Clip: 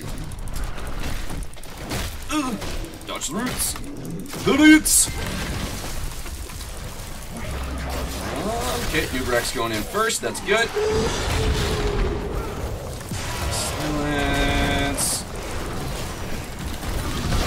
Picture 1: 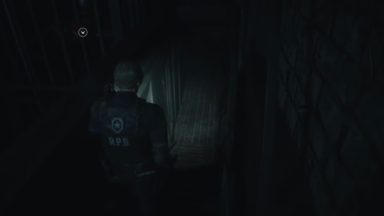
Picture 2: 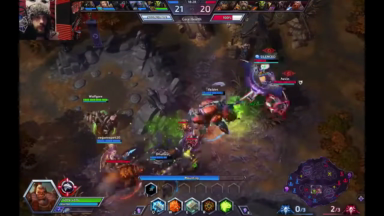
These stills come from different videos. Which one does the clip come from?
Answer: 2